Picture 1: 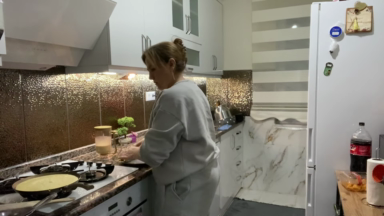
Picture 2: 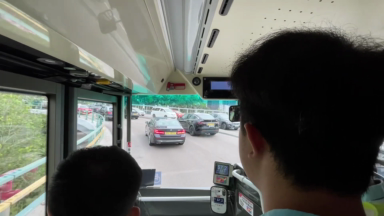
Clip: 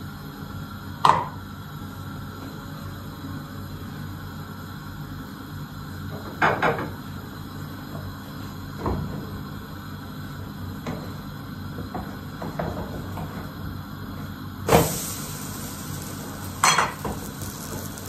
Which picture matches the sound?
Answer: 1